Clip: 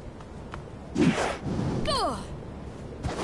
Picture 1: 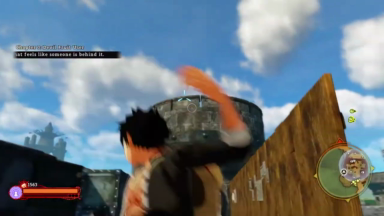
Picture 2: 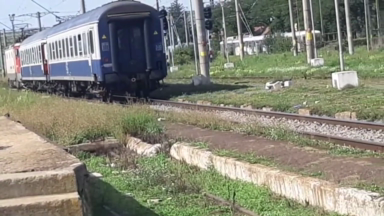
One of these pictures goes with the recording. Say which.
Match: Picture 1